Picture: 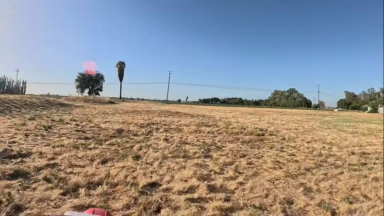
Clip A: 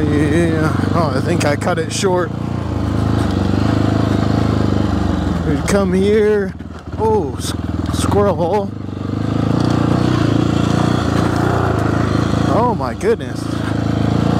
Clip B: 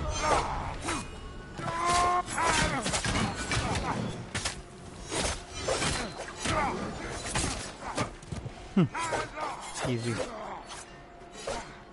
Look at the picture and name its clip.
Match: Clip A